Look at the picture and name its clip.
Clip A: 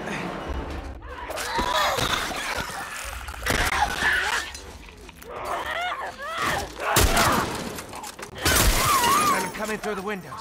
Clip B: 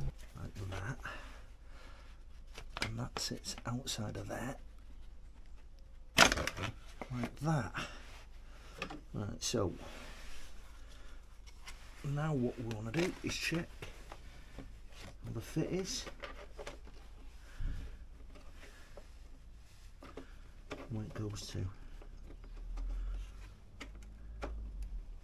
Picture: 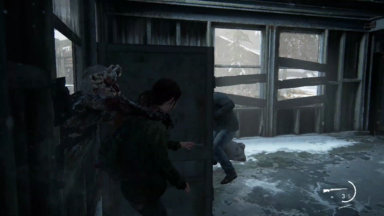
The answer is A